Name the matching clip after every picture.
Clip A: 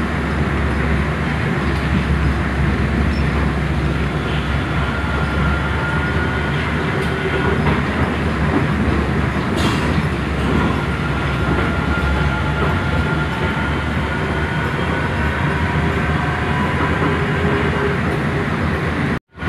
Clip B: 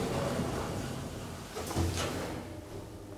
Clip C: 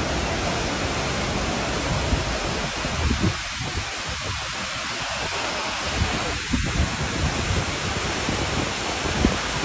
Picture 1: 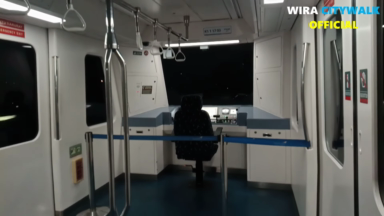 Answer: A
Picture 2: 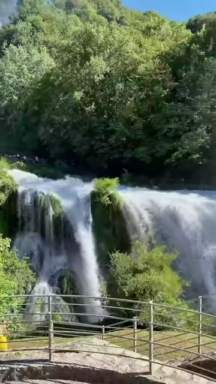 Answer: C